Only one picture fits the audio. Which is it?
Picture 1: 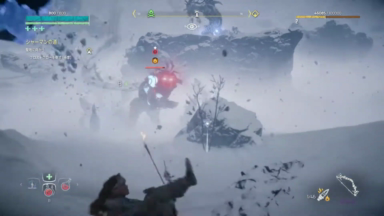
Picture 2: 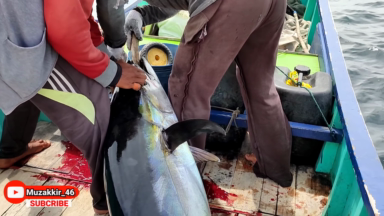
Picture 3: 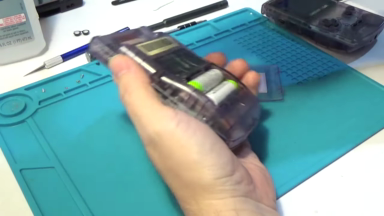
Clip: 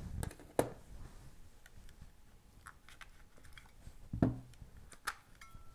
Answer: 3